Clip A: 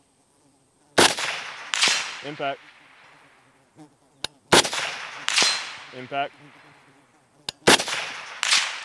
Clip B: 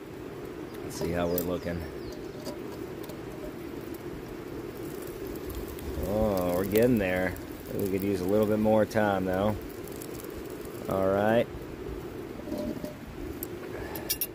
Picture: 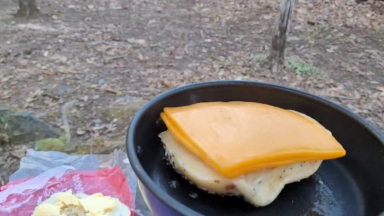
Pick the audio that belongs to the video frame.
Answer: B